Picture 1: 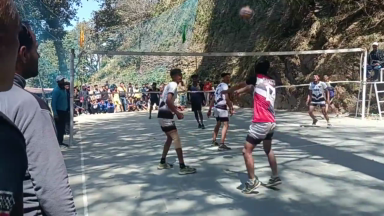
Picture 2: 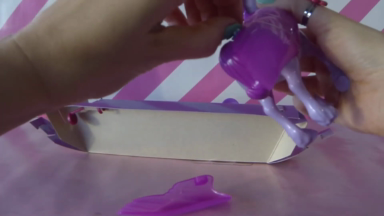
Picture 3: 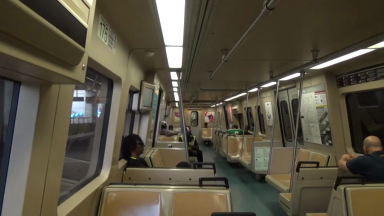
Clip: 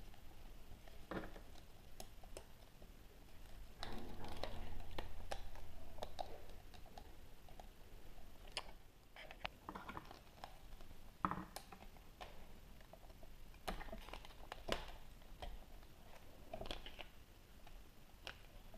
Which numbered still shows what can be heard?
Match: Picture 2